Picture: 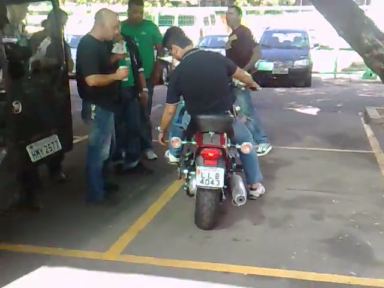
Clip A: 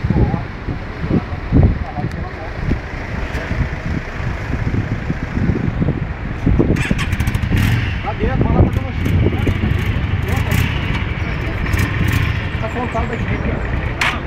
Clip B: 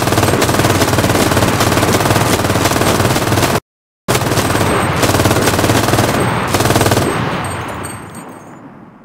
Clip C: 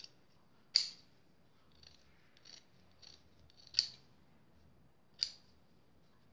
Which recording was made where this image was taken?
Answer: A